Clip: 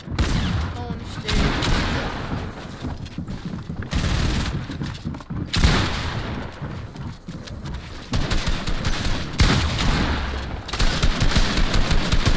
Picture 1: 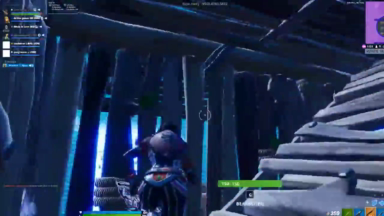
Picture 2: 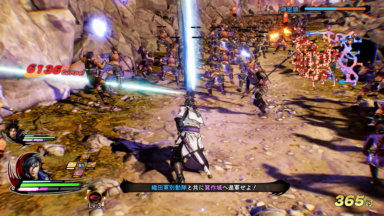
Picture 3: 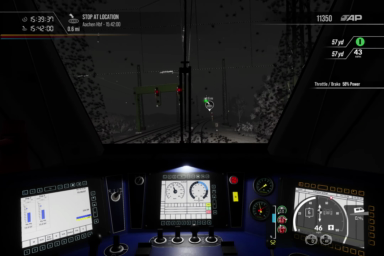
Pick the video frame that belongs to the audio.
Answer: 1